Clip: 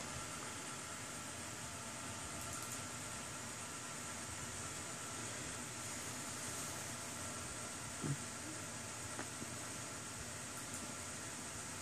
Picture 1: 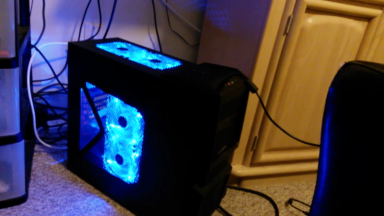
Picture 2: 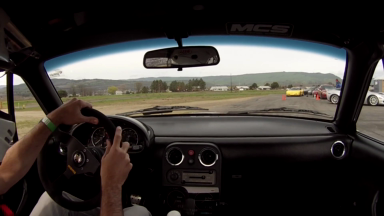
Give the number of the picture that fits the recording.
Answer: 1